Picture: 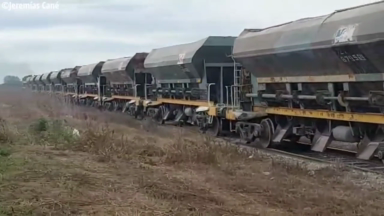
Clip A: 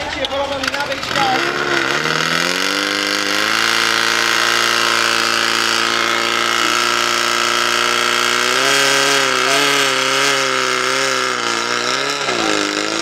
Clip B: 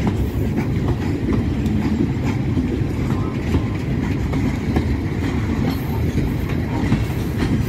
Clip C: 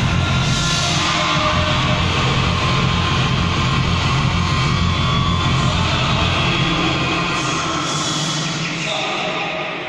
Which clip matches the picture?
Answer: B